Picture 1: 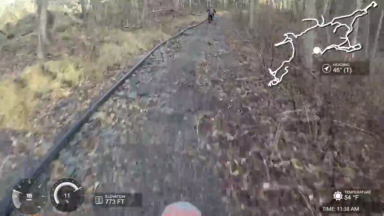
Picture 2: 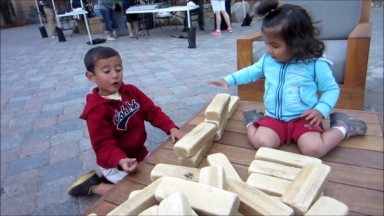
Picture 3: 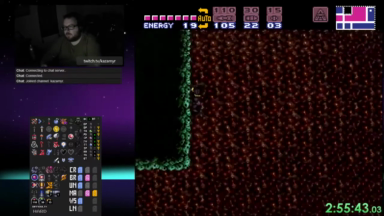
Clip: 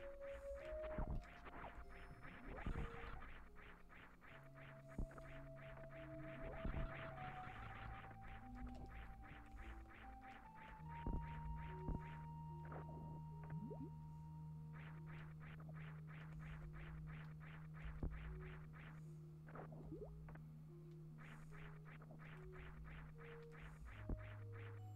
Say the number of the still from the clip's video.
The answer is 3